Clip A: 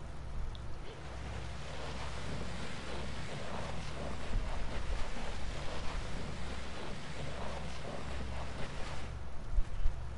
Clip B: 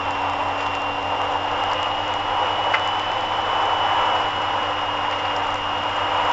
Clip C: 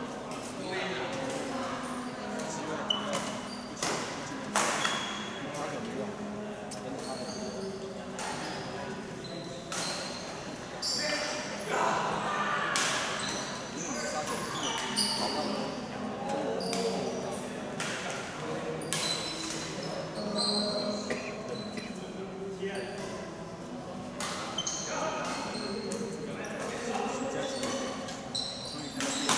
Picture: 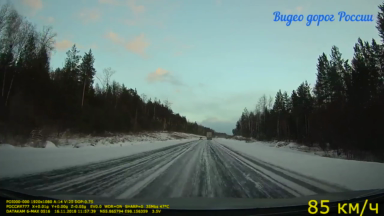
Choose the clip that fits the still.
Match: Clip B